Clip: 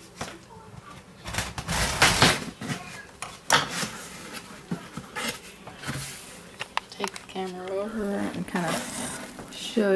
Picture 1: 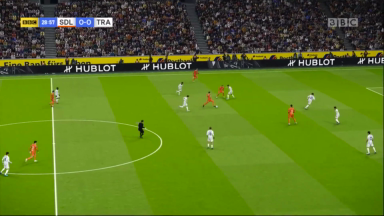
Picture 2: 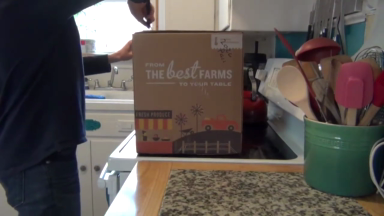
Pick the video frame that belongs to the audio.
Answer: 2